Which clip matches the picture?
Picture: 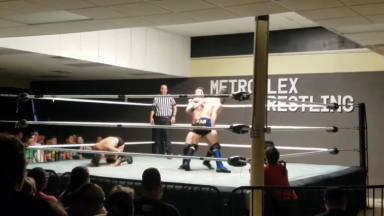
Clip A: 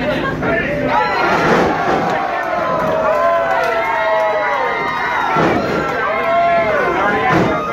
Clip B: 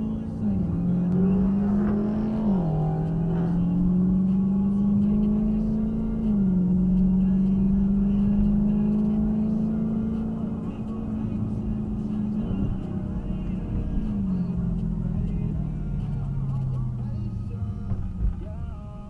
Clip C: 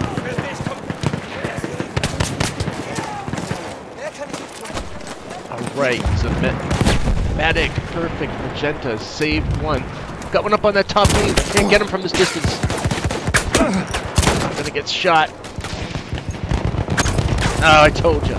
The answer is A